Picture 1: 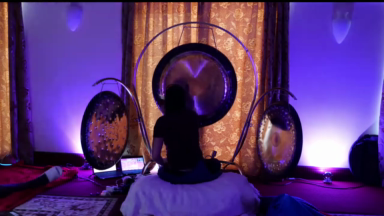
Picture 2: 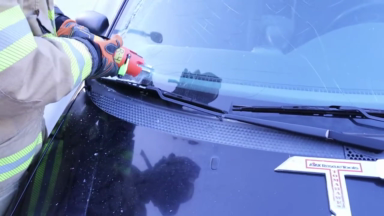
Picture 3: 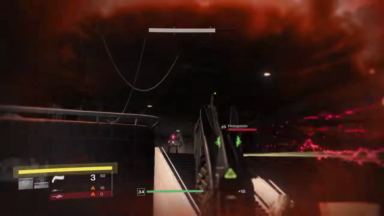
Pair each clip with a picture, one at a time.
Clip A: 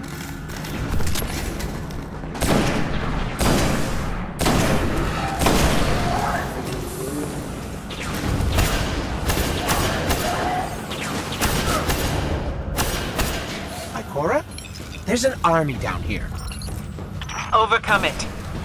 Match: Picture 3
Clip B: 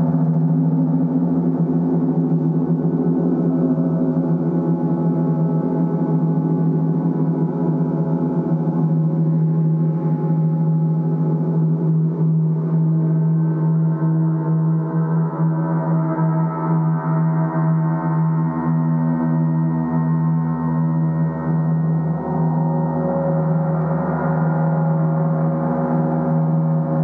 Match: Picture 1